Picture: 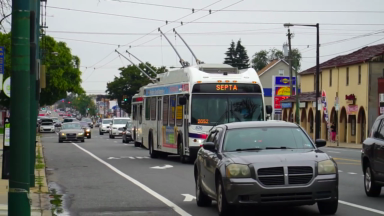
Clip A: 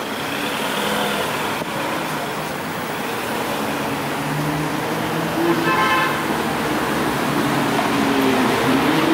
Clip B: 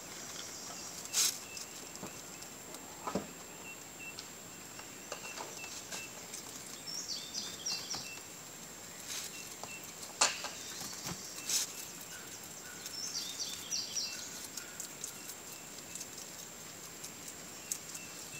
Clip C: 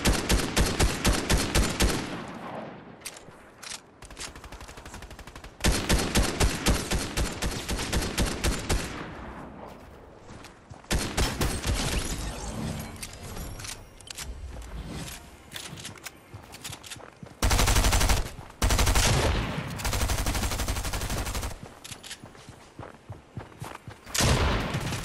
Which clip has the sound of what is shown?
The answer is A